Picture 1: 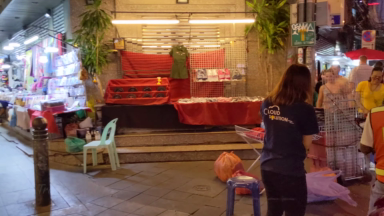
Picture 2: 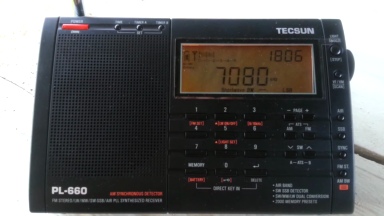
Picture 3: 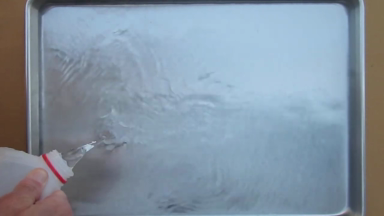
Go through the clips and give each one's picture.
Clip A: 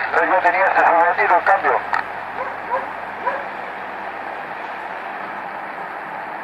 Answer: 2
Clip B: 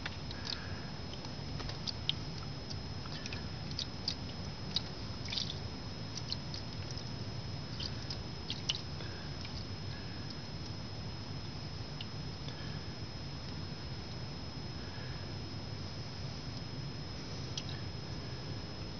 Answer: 3